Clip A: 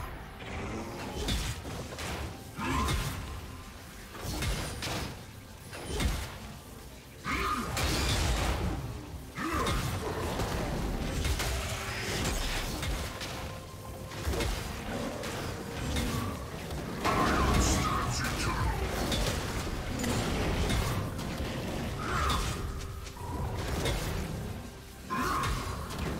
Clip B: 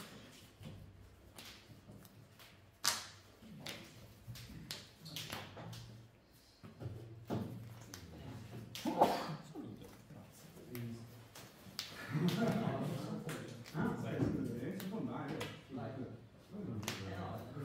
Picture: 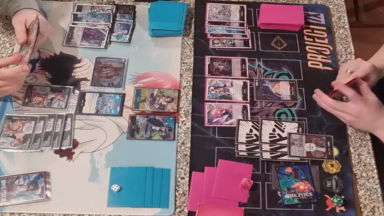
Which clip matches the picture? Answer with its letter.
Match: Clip B